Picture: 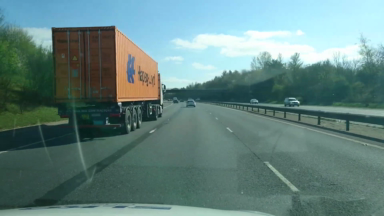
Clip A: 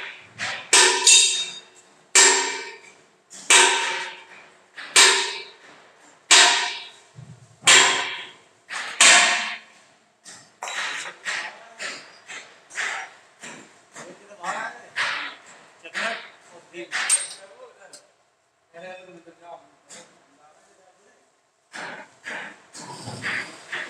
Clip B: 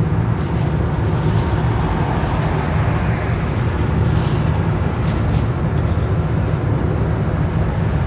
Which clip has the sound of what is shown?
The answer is B